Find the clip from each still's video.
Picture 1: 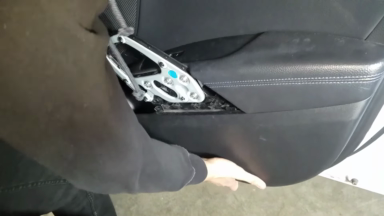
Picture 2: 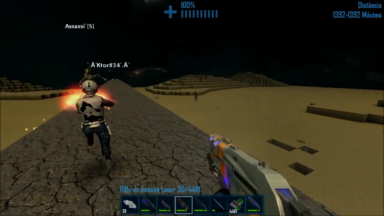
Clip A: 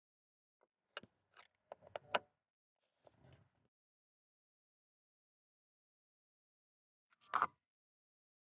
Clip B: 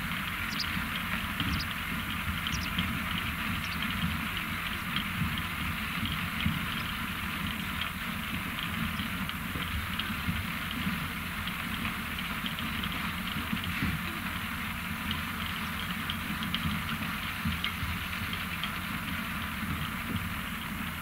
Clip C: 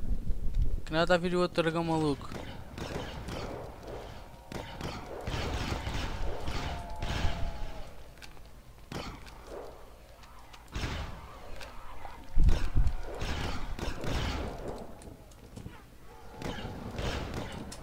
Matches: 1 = A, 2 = C